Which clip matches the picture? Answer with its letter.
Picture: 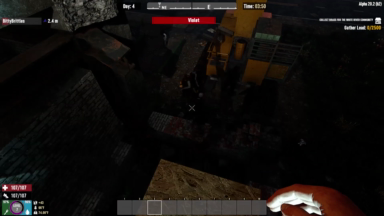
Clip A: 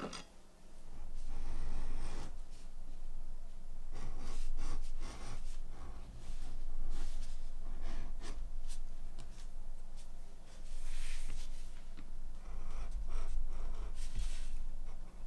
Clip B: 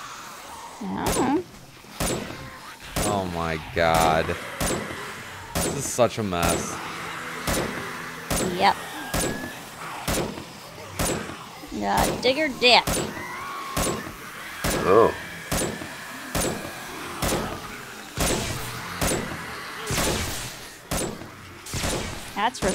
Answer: B